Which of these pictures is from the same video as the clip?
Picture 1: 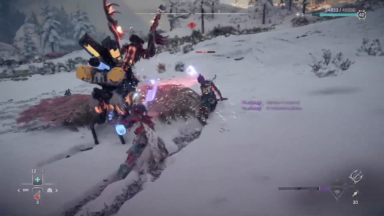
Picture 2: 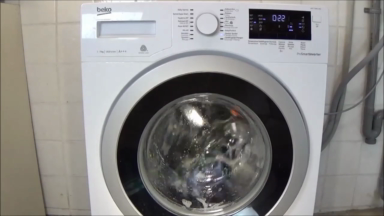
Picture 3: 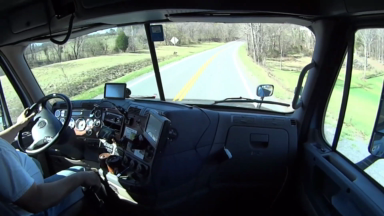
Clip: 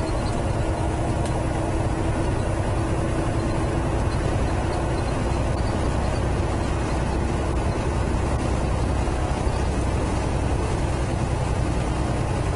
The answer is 3